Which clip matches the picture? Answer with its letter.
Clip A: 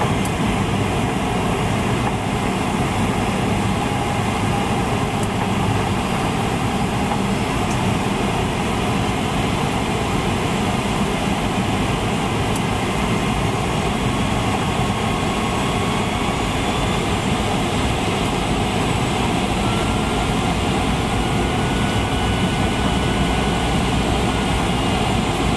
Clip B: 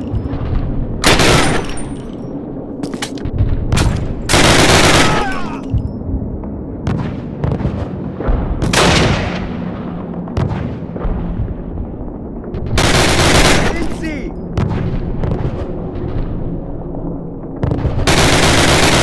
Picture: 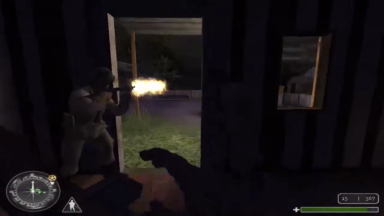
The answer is B